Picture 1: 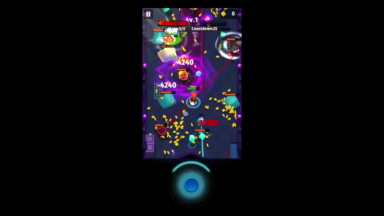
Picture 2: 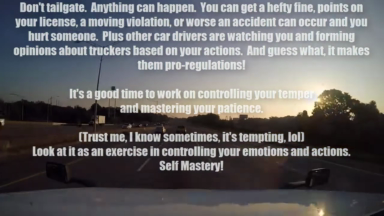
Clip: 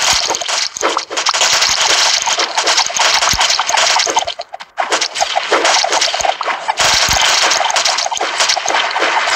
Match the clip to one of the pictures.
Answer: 1